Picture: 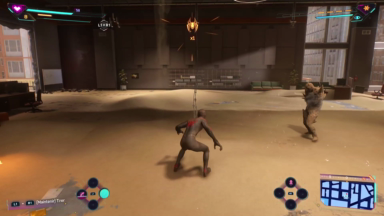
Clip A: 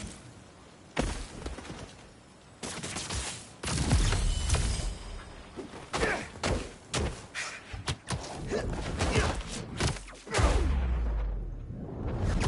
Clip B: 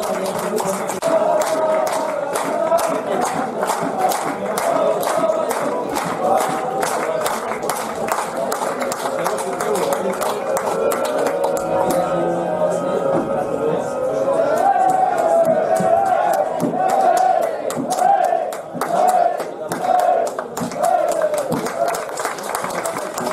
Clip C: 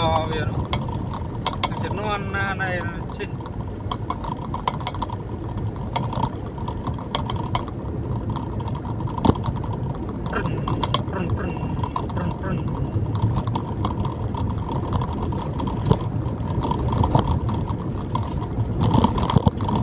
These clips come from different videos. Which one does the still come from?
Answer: A